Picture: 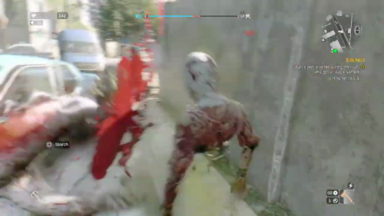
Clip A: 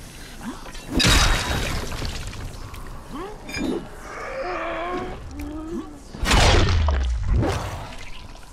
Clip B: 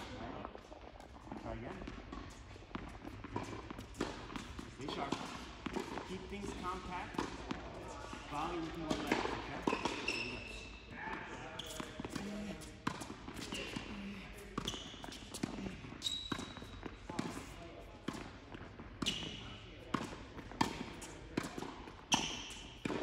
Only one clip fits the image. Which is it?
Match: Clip A